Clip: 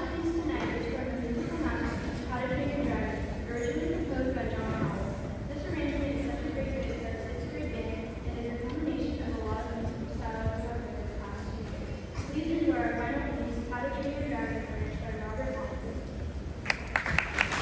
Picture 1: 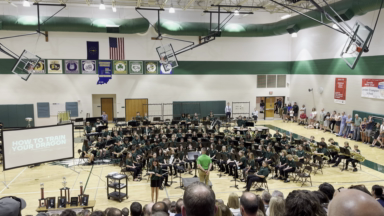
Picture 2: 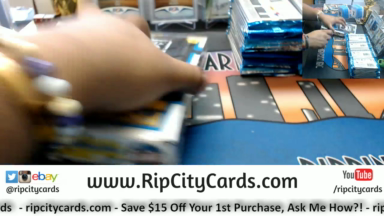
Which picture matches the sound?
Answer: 1